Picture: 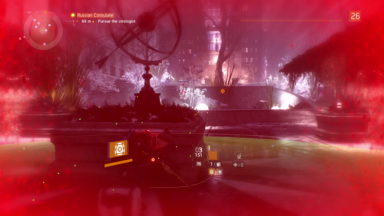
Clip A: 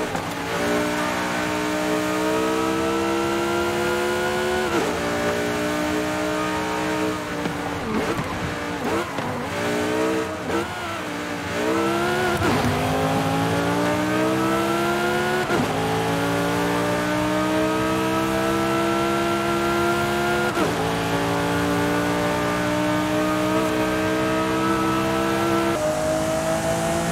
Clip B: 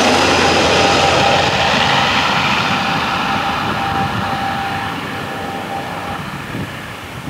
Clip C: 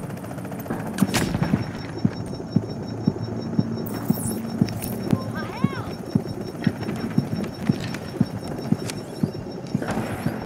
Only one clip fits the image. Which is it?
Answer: C